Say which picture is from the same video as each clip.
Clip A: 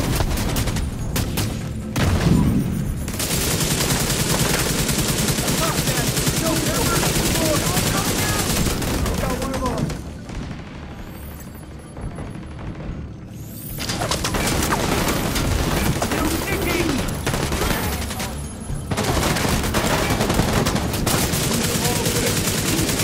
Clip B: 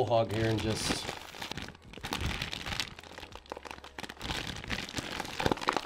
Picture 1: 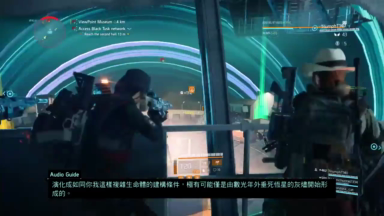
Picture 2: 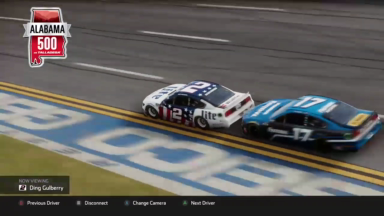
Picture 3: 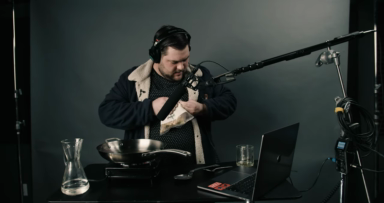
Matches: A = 1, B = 3